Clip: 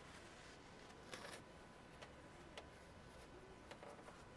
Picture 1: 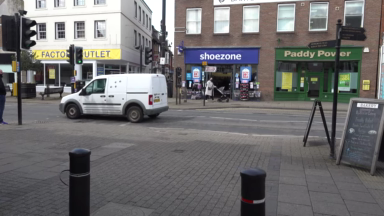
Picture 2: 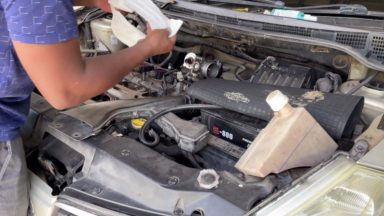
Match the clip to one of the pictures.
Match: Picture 2